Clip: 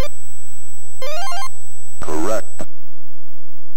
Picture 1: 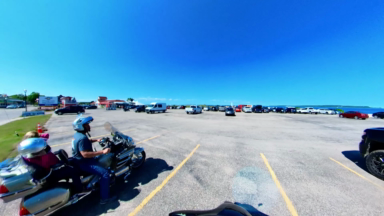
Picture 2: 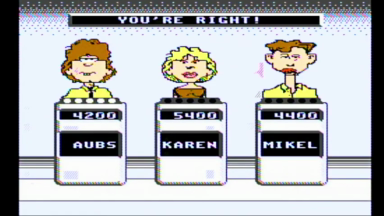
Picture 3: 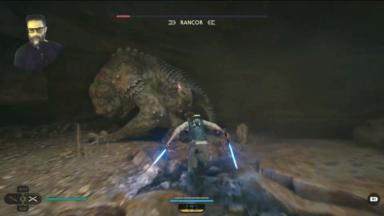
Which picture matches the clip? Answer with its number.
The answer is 2